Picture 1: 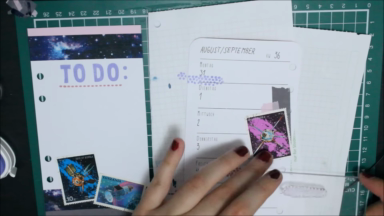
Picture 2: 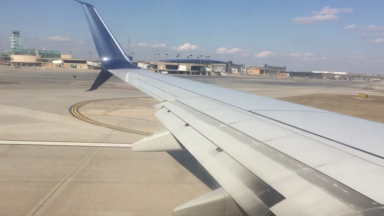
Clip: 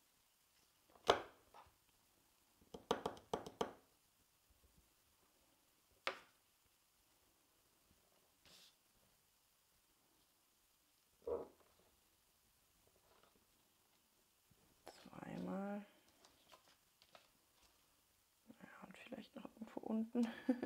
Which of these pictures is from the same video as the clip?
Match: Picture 1